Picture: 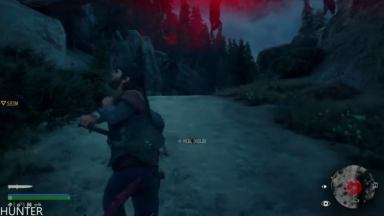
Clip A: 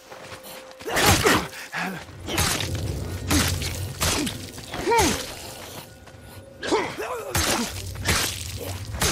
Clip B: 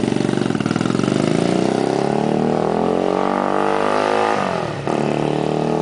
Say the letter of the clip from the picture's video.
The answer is A